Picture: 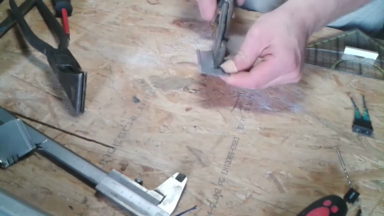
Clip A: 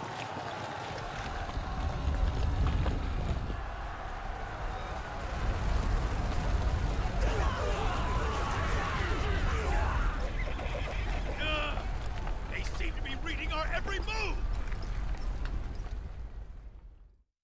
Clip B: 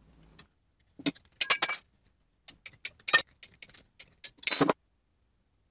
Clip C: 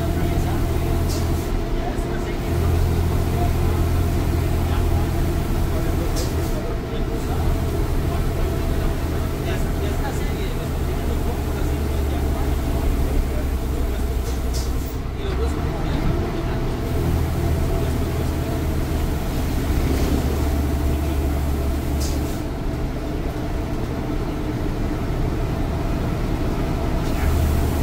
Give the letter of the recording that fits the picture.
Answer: B